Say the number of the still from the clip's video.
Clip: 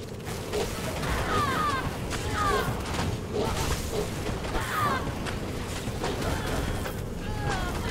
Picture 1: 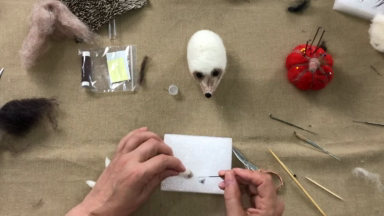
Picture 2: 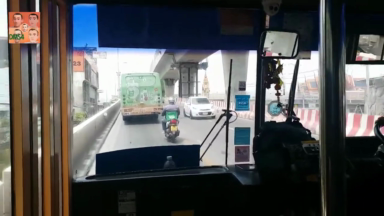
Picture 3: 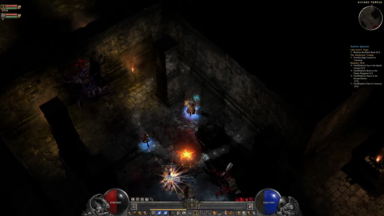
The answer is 3